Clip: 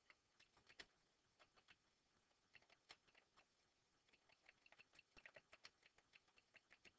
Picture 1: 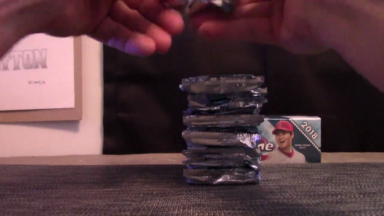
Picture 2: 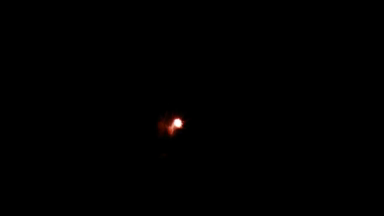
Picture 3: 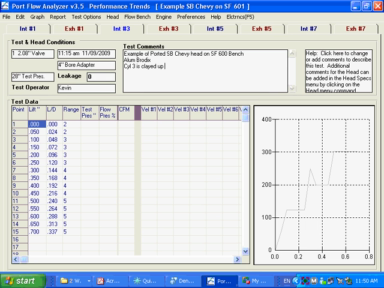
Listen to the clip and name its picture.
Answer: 3